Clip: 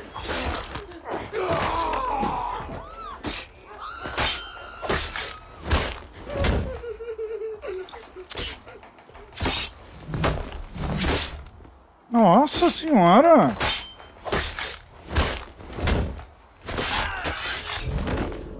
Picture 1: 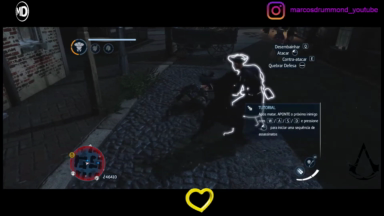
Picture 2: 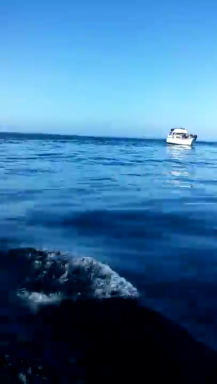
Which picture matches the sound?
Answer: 1